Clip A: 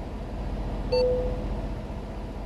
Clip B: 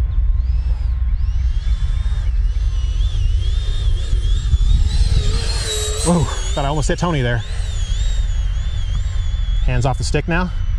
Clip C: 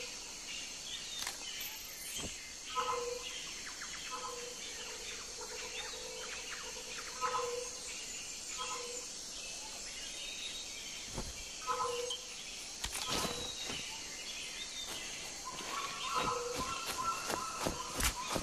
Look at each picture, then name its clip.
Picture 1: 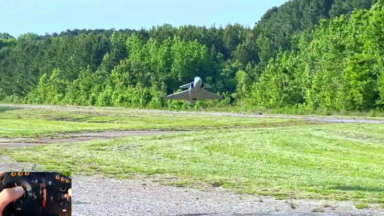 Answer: B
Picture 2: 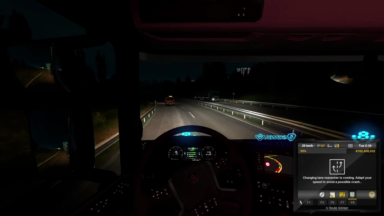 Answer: A